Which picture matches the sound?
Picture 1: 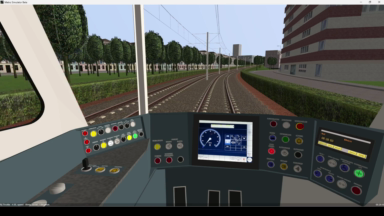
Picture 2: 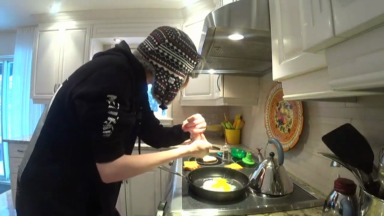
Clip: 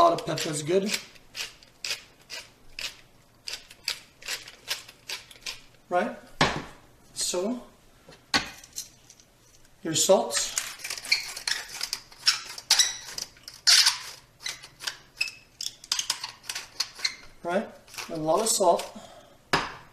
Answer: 2